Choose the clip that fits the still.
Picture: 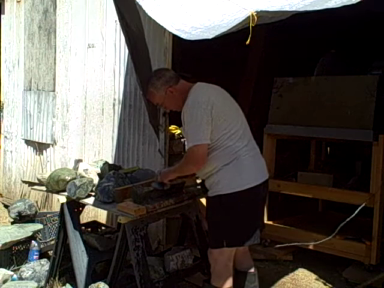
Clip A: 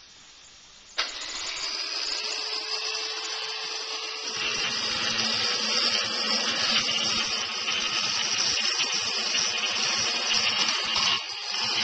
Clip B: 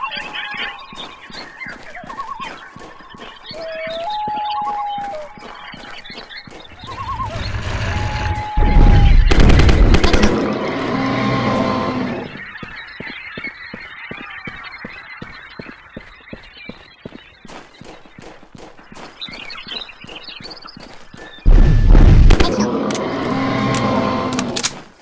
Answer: A